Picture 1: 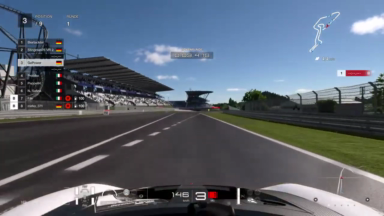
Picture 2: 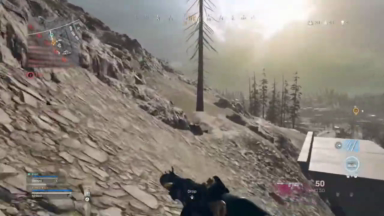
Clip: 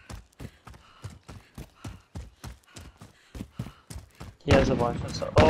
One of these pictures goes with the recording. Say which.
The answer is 2